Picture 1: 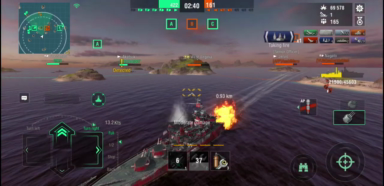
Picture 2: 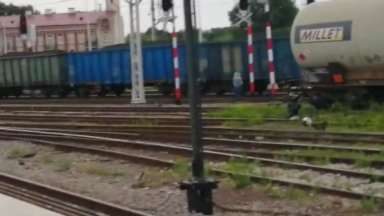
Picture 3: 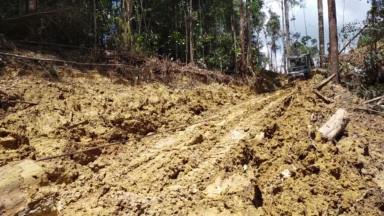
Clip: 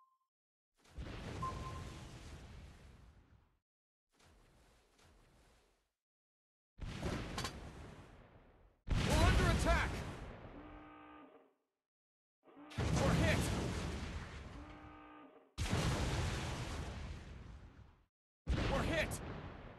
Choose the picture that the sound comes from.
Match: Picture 1